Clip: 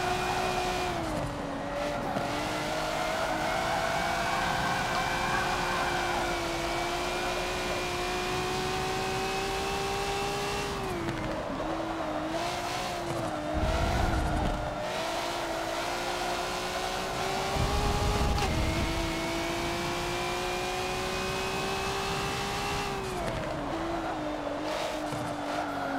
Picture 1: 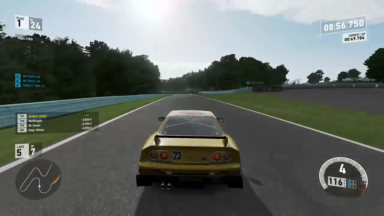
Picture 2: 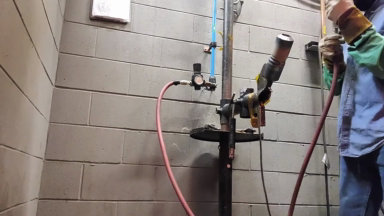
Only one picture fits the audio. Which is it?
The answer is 1